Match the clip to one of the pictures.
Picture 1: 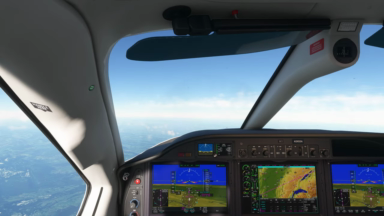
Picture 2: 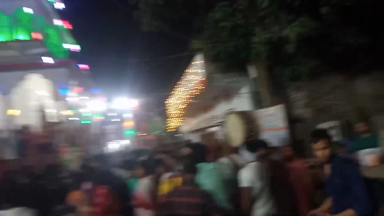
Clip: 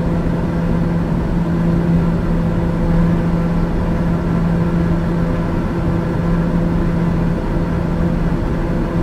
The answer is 1